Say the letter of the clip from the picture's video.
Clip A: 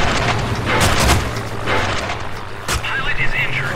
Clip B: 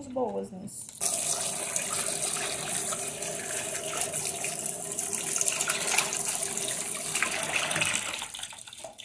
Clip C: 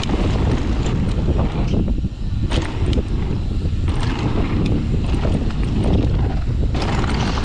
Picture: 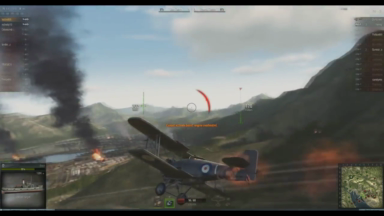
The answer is A